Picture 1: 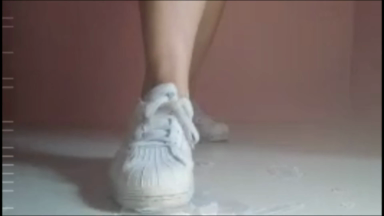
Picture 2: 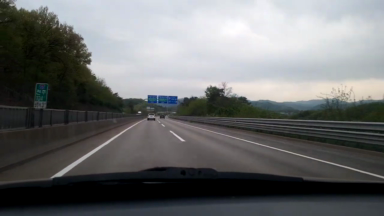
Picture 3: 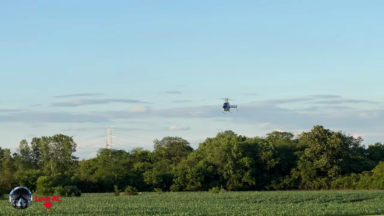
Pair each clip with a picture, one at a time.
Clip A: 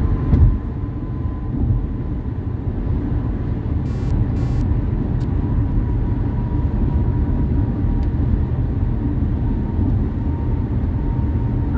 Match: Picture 2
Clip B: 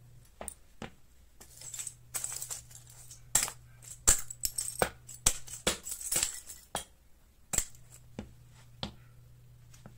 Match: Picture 1